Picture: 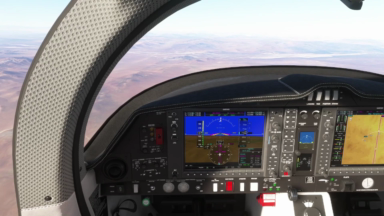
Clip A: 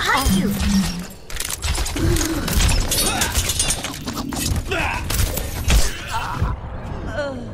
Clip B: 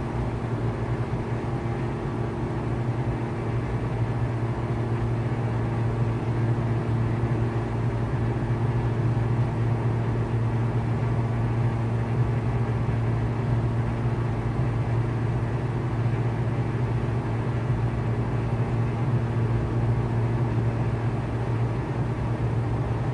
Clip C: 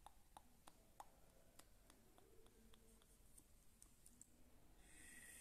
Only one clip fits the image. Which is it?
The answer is B